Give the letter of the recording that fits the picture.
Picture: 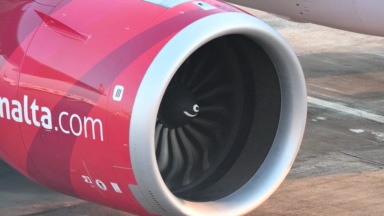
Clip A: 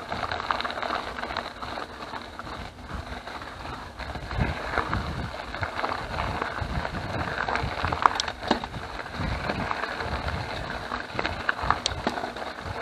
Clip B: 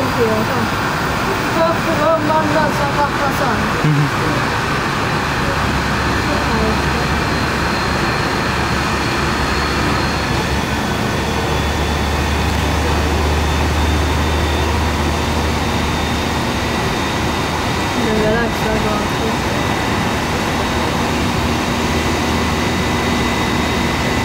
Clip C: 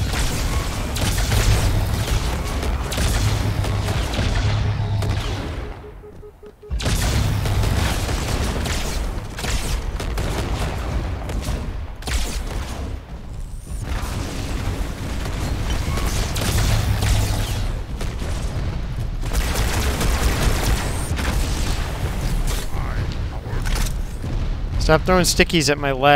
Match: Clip B